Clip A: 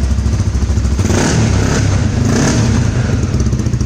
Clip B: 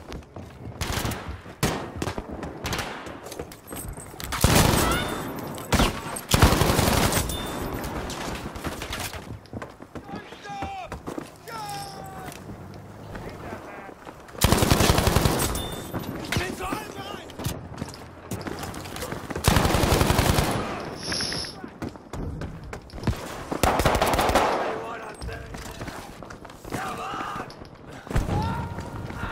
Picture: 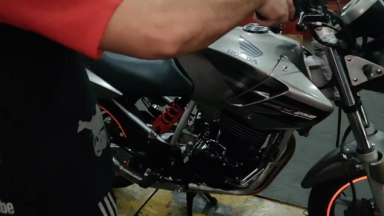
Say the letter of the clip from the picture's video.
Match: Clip A